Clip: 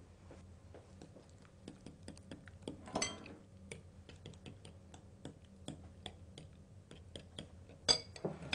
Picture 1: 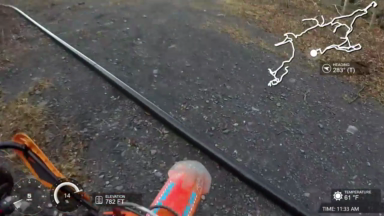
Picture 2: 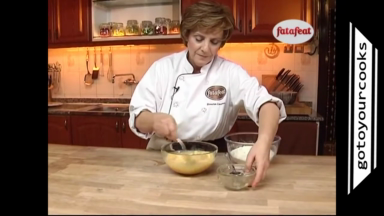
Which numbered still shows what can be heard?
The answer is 2